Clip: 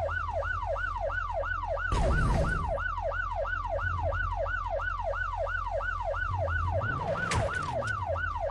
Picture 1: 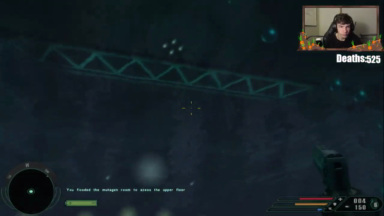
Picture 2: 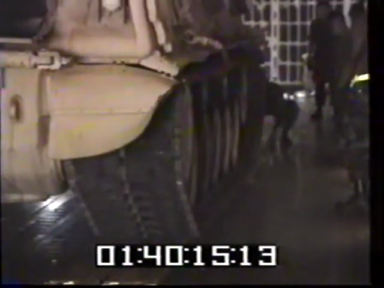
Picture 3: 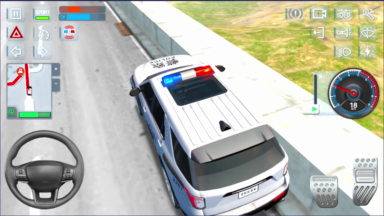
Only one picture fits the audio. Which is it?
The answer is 3